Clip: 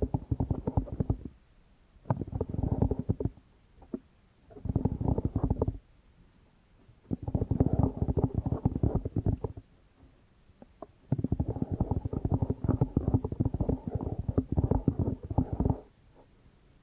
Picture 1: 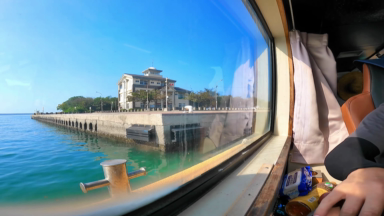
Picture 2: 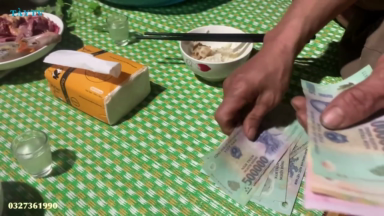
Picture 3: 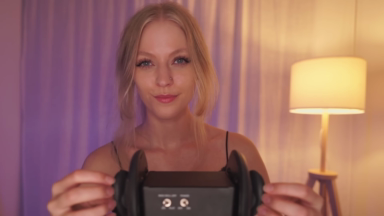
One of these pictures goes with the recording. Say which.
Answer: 3